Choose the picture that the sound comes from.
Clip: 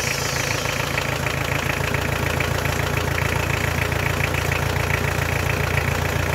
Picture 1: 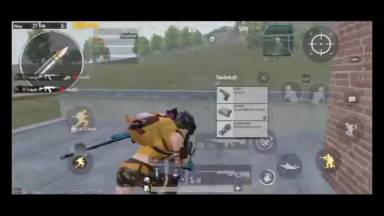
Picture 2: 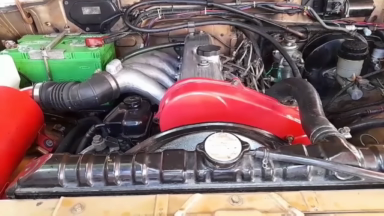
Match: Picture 2